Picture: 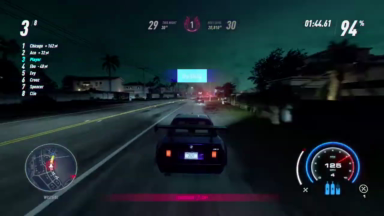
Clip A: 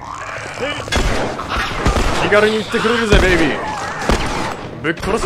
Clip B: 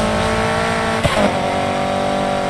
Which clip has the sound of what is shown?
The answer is B